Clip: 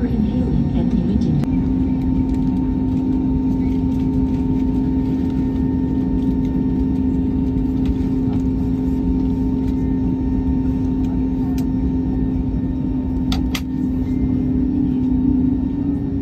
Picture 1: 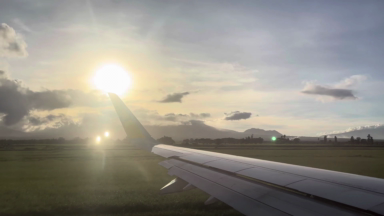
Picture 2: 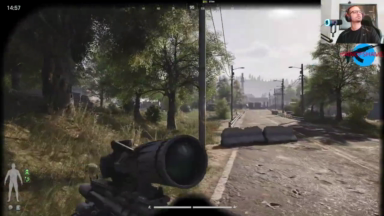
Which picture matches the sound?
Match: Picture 1